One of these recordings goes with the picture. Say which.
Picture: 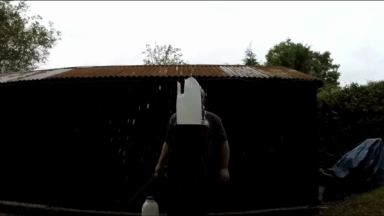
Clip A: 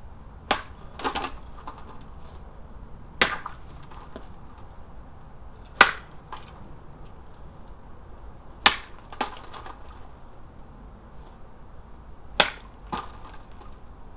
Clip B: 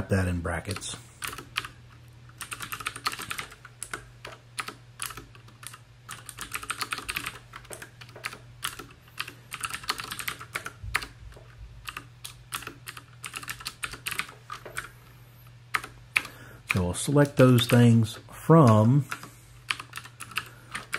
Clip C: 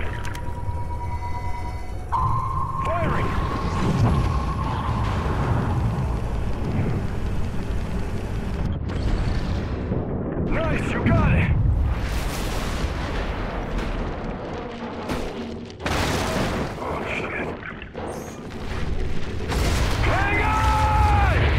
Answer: A